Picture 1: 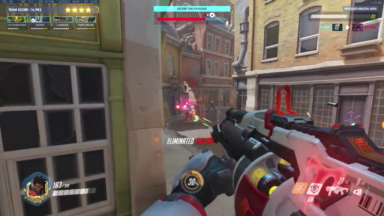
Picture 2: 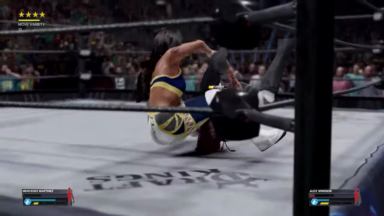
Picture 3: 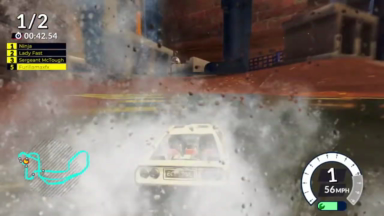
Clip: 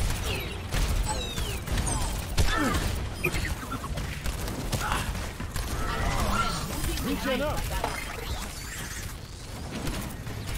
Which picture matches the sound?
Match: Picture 1